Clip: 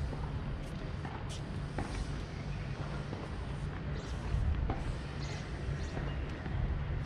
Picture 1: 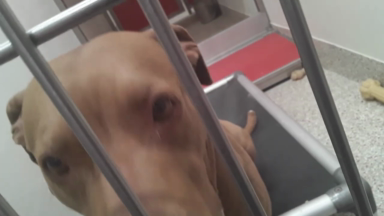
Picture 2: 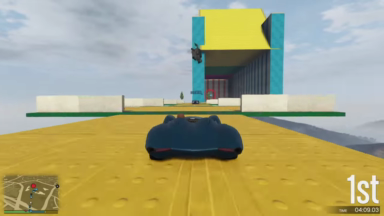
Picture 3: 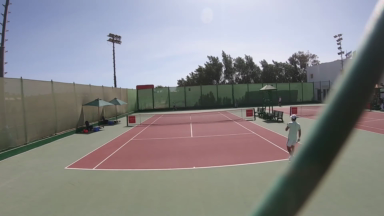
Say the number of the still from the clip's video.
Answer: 3